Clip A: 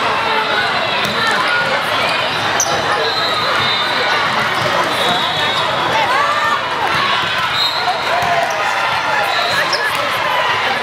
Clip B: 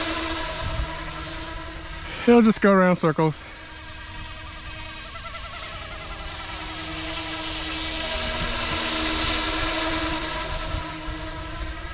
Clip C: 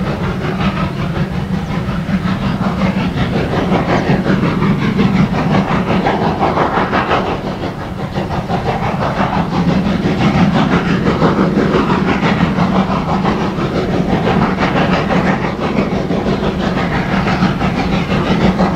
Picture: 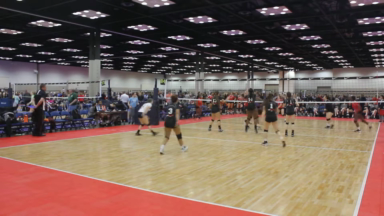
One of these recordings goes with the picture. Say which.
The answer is A